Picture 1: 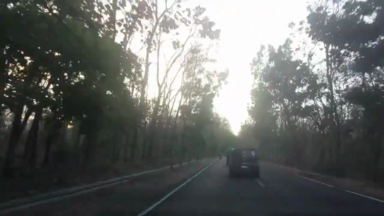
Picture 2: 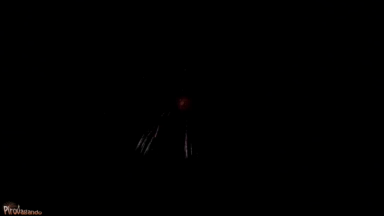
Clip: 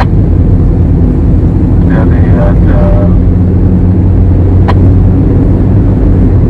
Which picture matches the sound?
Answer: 1